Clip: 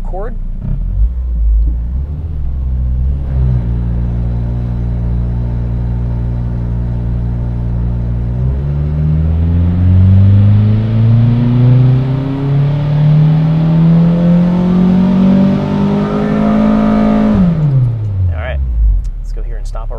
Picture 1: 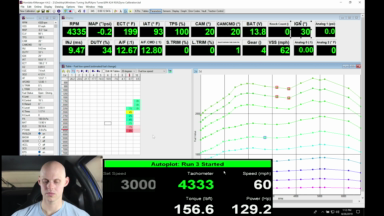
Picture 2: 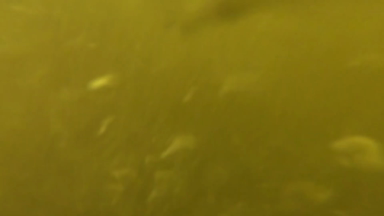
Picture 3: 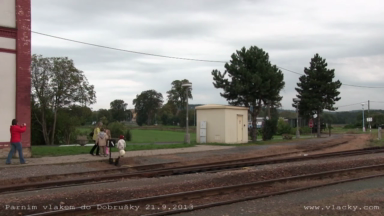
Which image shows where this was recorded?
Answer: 1